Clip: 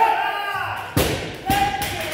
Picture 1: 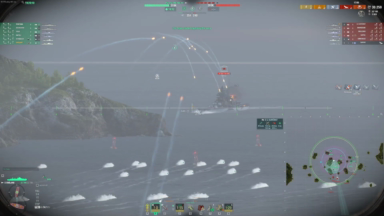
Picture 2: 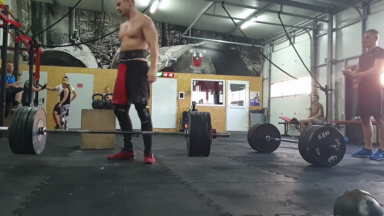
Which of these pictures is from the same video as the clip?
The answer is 2